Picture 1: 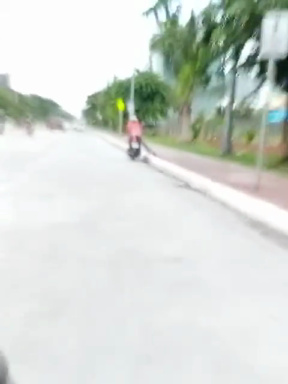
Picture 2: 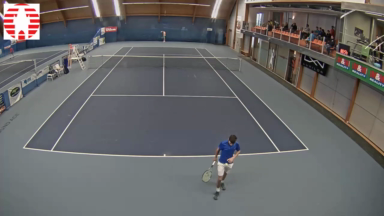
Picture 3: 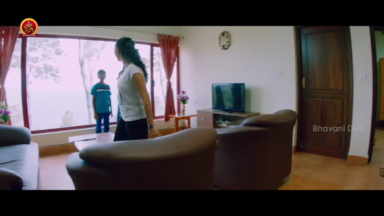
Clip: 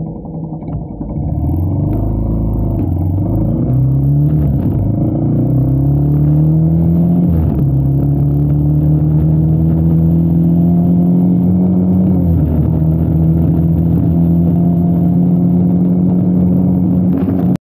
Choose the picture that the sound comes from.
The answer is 1